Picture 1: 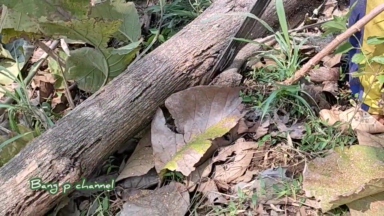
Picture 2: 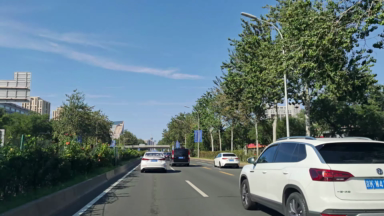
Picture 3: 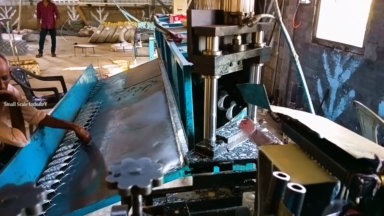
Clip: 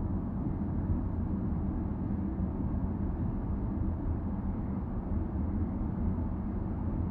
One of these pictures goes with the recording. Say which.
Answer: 2